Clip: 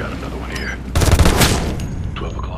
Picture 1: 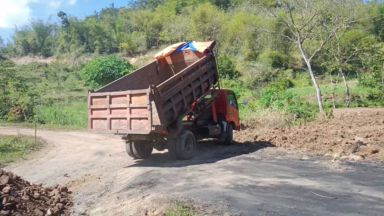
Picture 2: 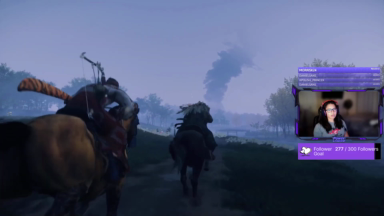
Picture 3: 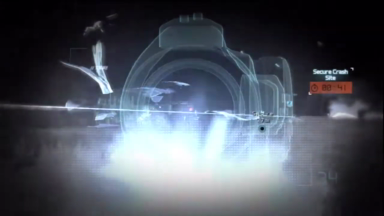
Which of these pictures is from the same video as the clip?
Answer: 3